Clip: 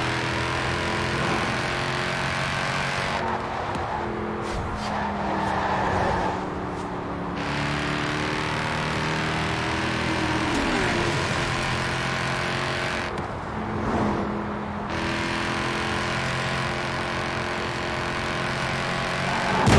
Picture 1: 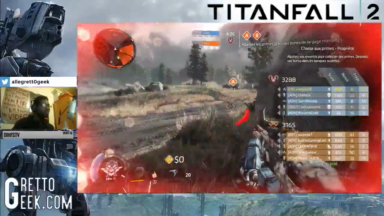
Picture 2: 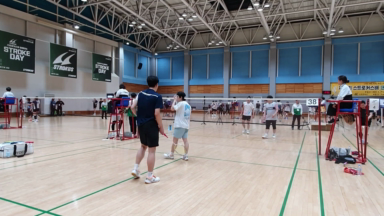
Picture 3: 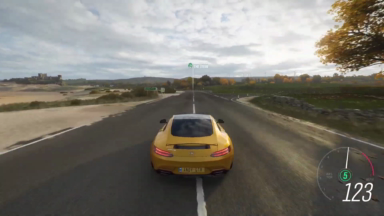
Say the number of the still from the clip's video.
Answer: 3